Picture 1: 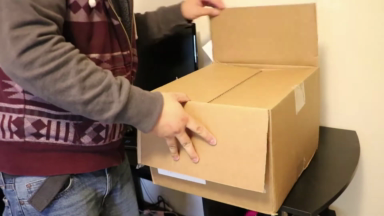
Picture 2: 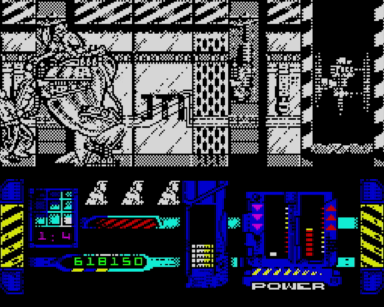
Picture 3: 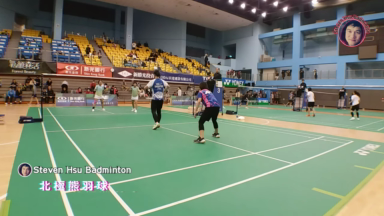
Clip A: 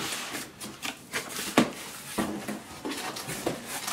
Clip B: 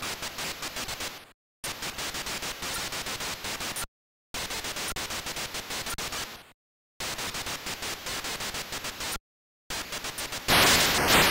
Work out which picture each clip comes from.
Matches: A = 1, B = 2